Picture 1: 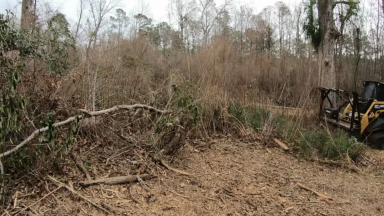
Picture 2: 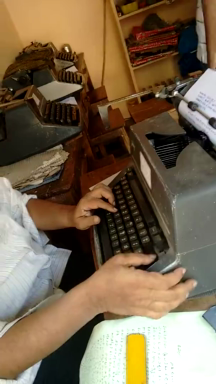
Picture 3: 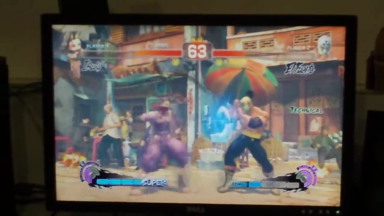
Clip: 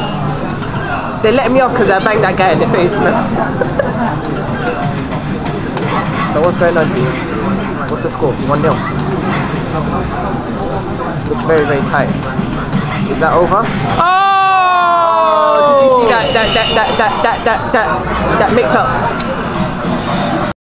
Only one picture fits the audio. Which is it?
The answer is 3